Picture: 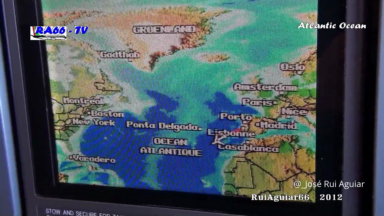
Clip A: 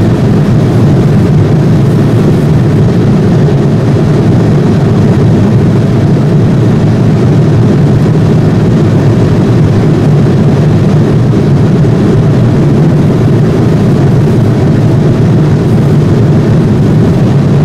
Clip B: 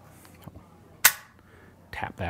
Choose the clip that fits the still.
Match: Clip A